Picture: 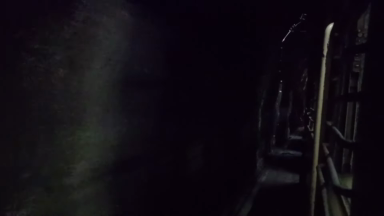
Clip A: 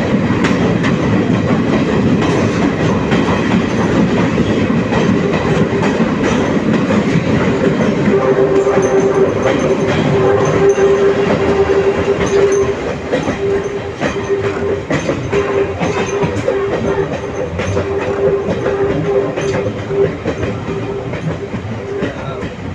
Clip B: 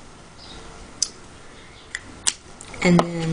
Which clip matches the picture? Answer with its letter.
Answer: A